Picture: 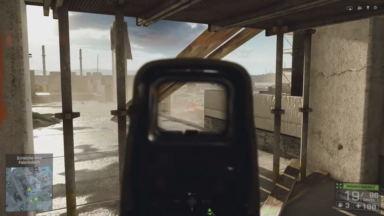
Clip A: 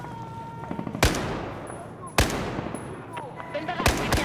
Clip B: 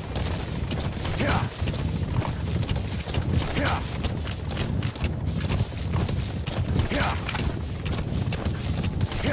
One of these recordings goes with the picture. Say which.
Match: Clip A